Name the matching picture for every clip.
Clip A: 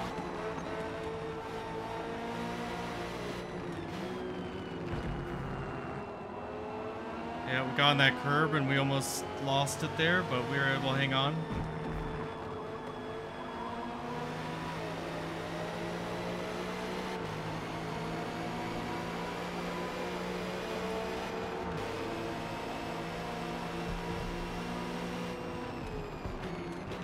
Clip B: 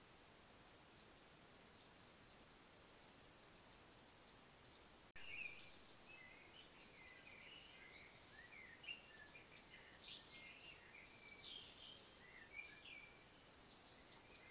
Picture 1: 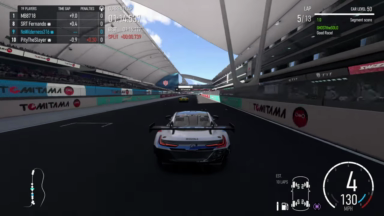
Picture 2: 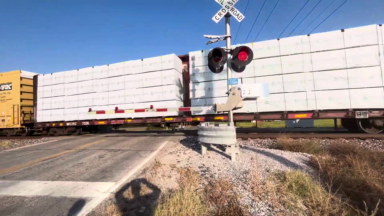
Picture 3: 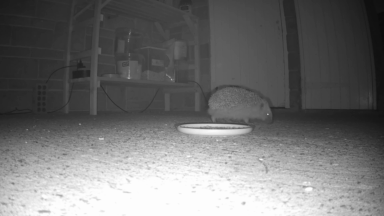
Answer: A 1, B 3